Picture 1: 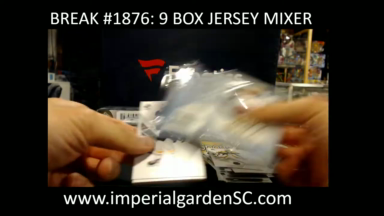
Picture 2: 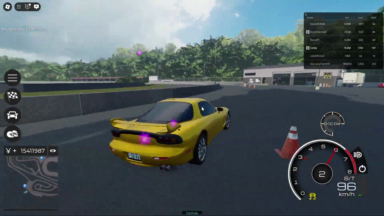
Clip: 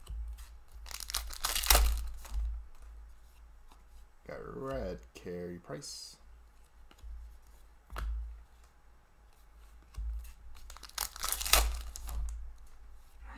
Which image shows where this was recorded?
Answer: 1